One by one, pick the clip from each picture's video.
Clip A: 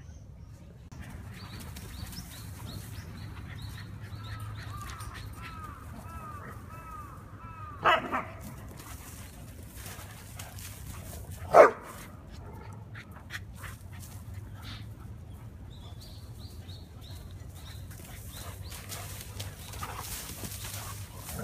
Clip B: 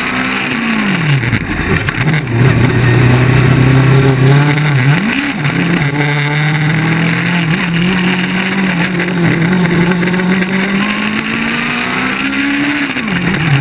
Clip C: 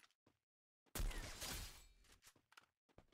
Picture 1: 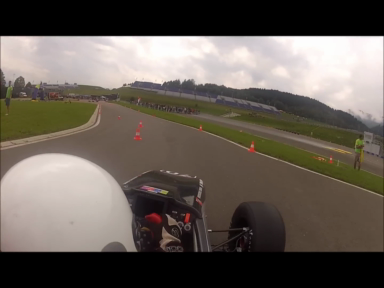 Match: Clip B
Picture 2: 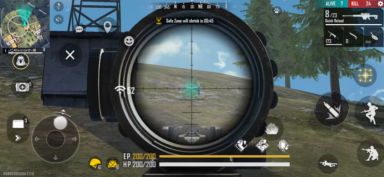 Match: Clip C